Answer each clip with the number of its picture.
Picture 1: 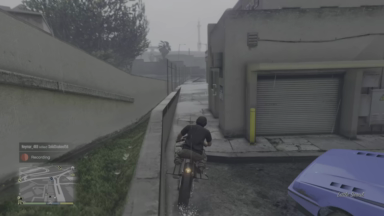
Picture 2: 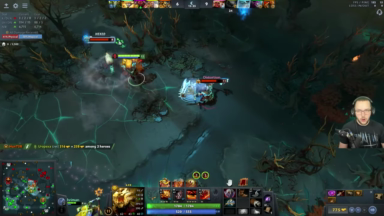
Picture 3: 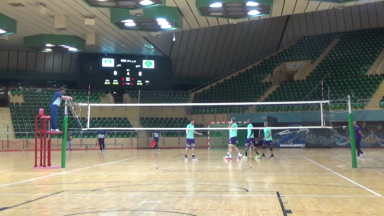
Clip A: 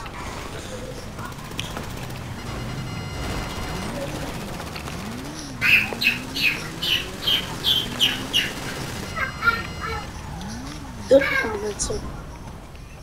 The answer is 1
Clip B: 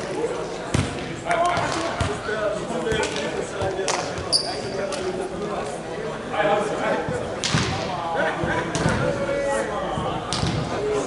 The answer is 3